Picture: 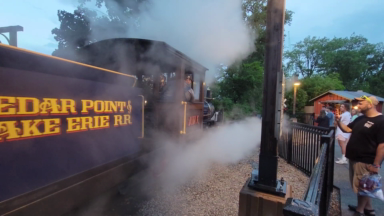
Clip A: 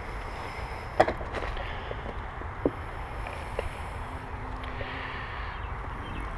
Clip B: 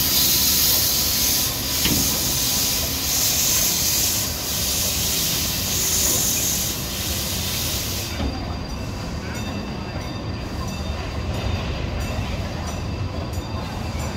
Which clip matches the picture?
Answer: B